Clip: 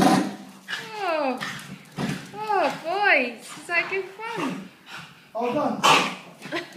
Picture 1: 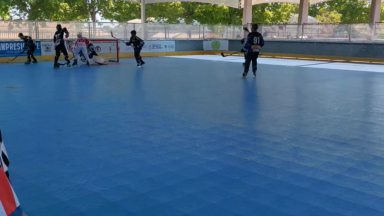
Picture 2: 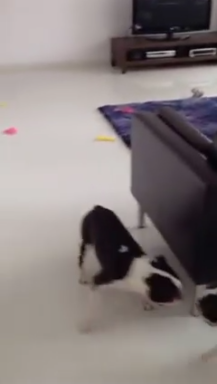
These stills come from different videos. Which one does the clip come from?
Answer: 2